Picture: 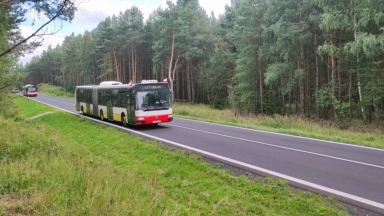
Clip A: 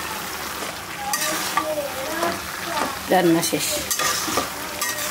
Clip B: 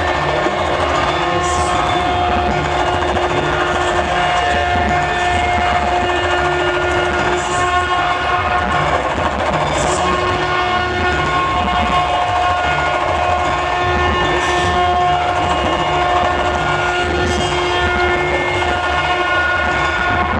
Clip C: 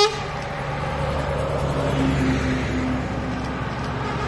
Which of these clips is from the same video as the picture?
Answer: C